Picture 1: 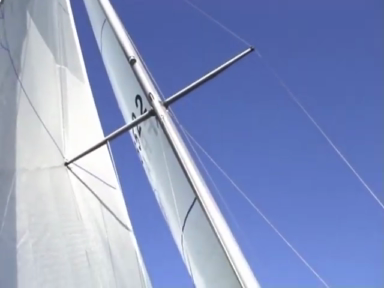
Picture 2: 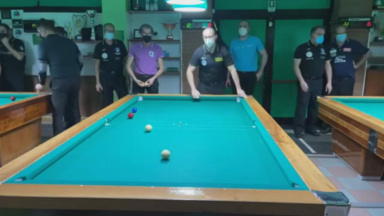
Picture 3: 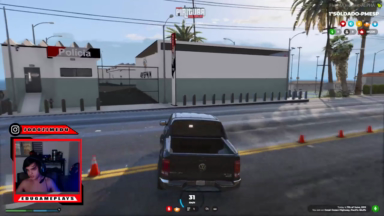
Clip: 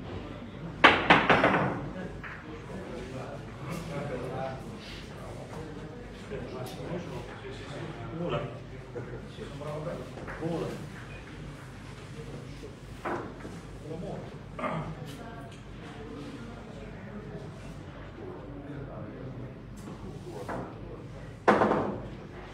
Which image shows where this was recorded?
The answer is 2